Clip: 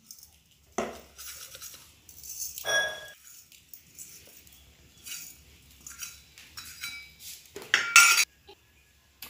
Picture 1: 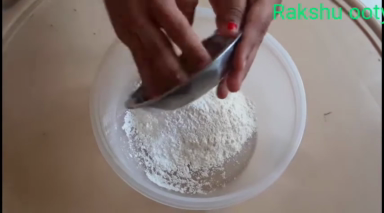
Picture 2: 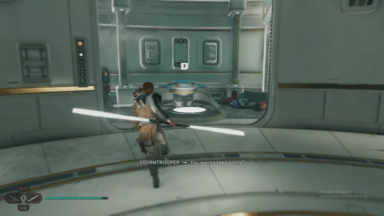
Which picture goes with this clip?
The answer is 1